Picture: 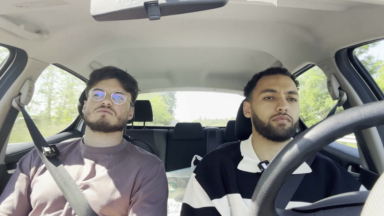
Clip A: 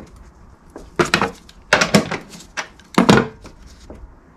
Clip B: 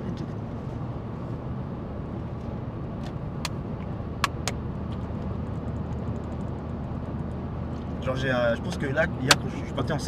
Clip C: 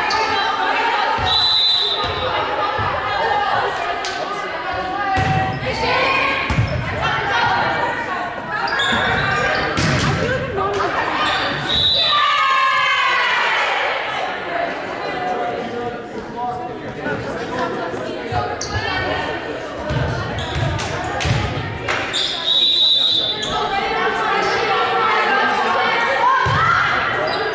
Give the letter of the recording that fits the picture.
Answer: B